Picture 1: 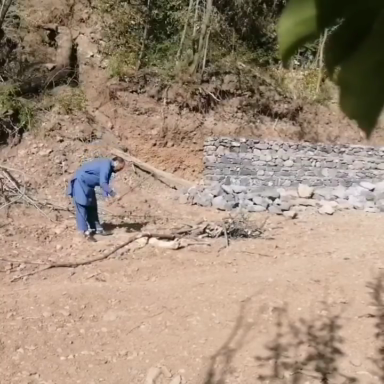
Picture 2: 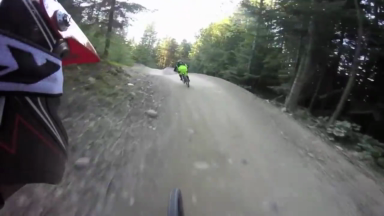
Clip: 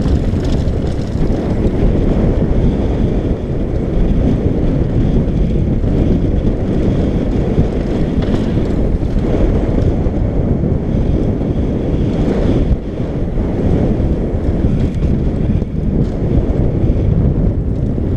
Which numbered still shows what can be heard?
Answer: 2